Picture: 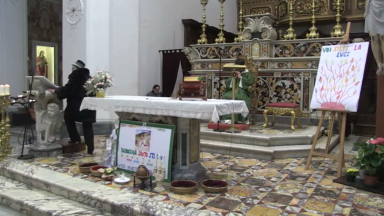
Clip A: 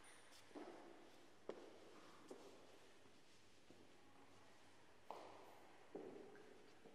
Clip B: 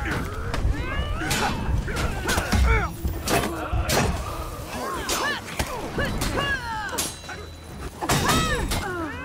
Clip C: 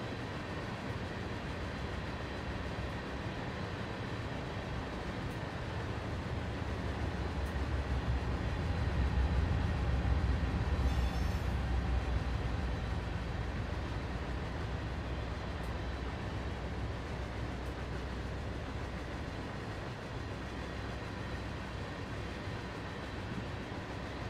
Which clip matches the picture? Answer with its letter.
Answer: A